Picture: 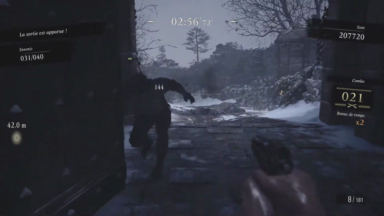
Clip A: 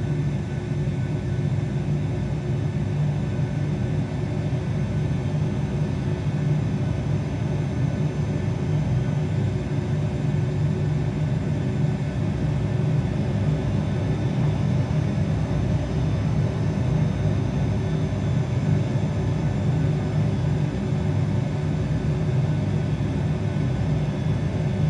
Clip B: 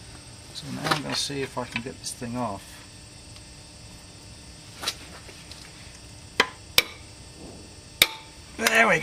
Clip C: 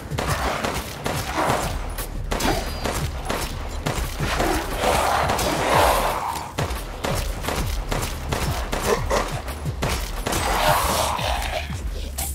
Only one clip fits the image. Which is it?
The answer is C